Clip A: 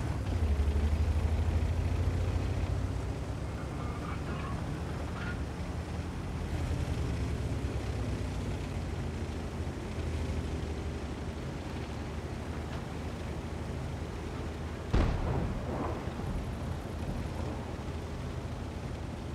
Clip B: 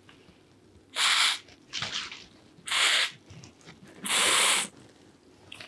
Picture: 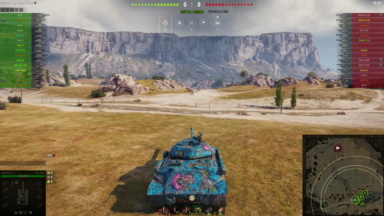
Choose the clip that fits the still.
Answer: A